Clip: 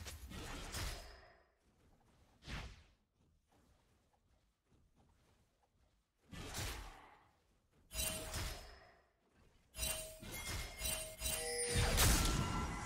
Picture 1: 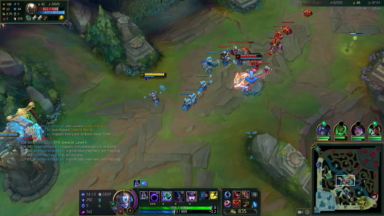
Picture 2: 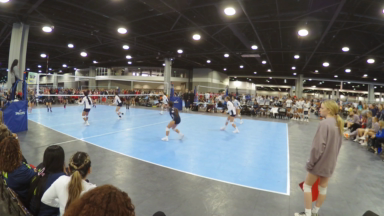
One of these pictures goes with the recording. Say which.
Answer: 1